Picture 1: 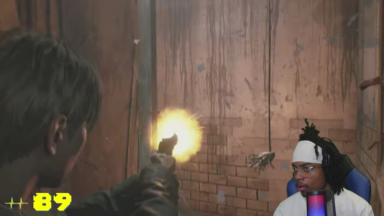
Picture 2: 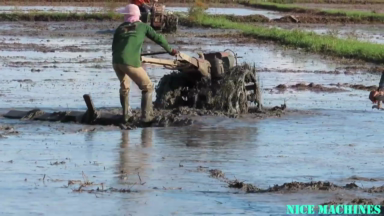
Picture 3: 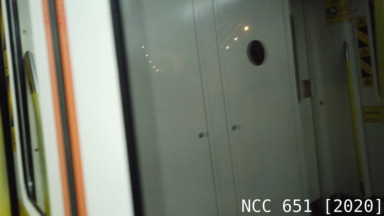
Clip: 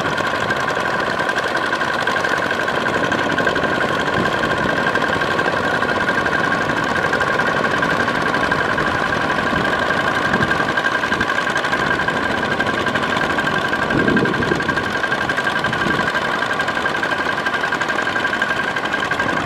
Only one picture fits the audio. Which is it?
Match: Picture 2